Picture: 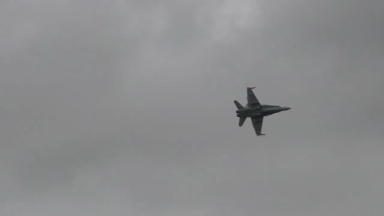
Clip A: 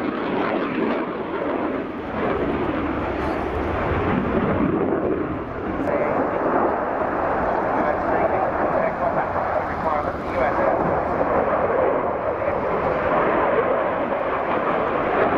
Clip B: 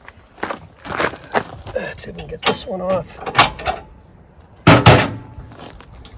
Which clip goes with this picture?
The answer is A